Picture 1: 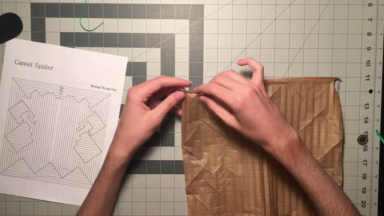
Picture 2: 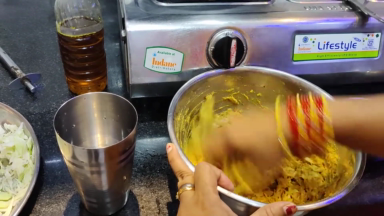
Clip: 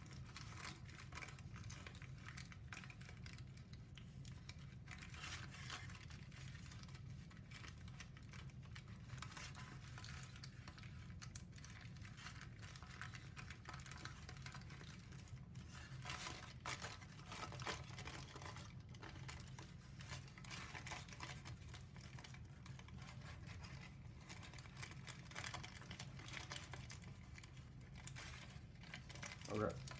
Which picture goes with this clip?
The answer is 1